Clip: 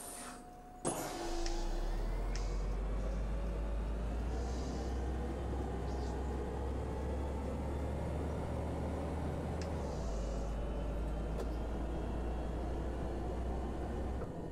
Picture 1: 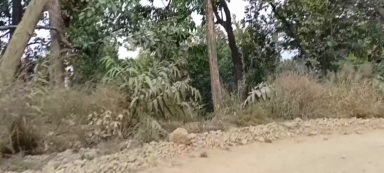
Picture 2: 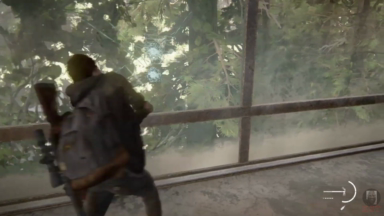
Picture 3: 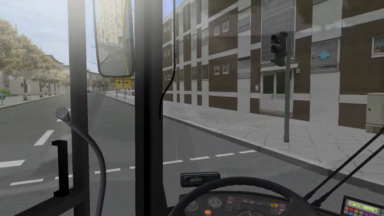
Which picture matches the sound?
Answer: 3